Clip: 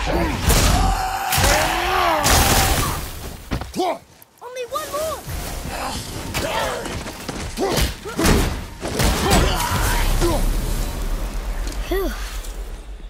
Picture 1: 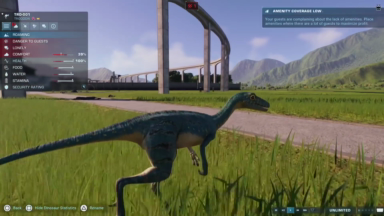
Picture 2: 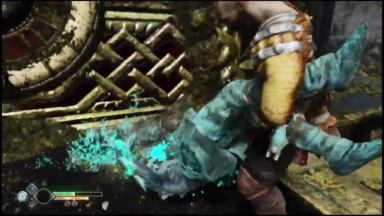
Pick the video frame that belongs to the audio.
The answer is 2